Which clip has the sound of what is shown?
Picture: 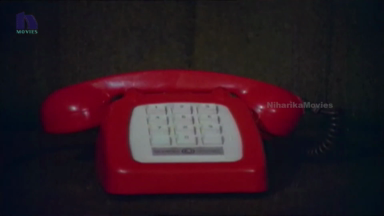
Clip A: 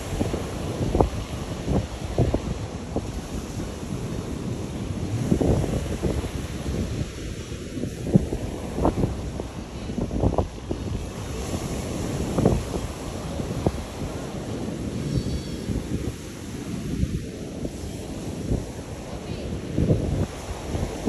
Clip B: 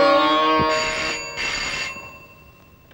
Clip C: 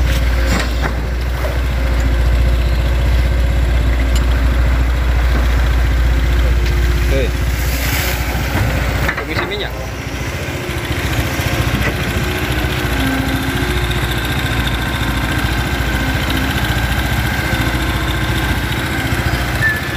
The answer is B